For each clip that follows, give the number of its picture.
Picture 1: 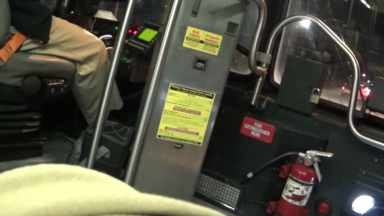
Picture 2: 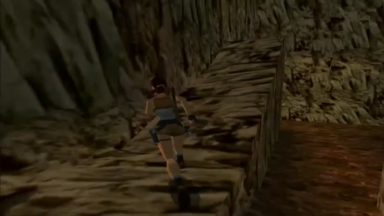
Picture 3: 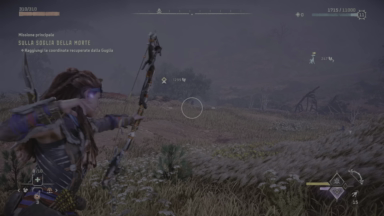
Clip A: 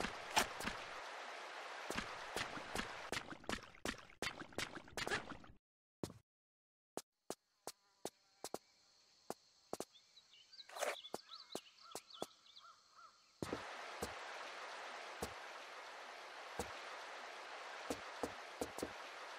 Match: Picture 2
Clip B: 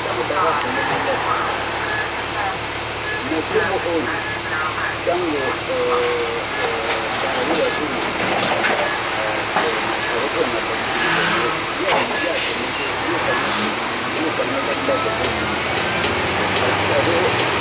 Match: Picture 1